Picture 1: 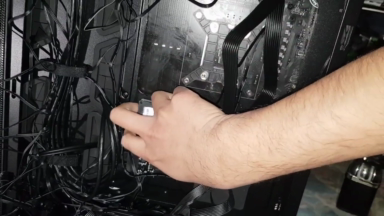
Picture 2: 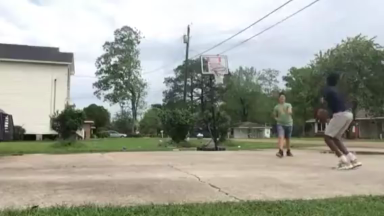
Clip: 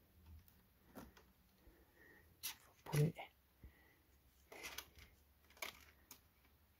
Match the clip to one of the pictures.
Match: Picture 1